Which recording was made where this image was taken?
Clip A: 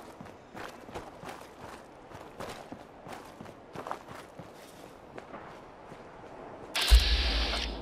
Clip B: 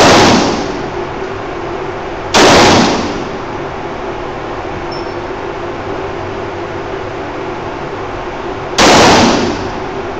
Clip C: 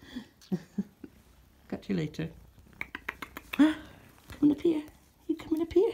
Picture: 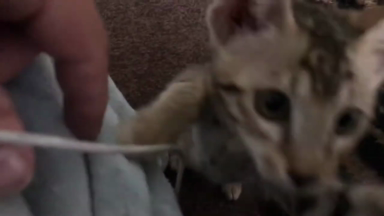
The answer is C